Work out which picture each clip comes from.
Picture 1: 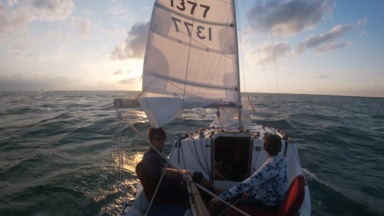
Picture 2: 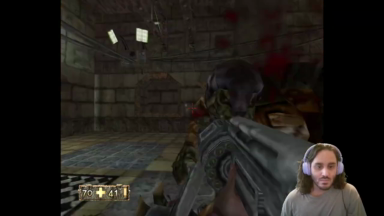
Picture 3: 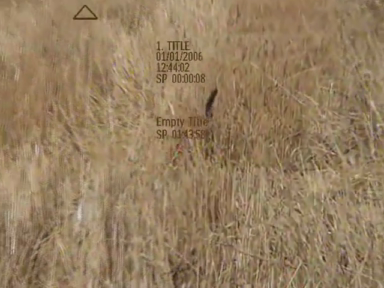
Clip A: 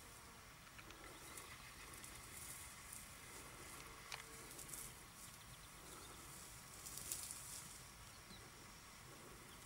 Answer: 3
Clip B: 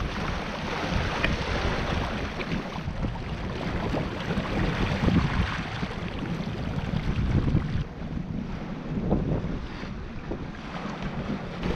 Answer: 1